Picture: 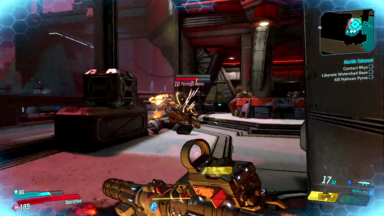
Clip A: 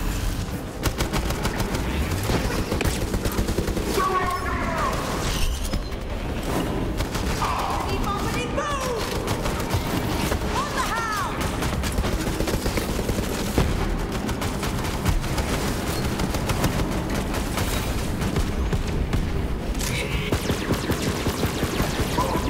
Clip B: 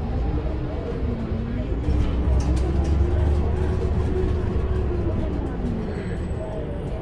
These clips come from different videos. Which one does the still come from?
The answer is A